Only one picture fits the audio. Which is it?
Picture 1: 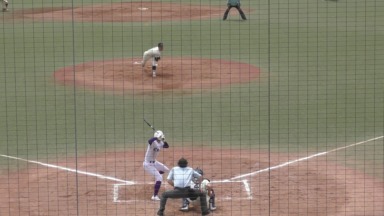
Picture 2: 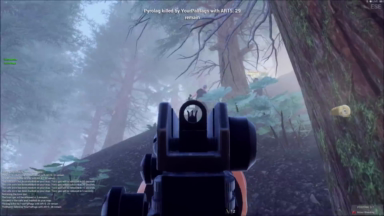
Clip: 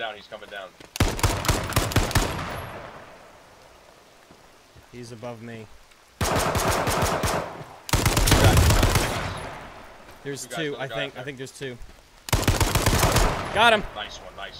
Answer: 2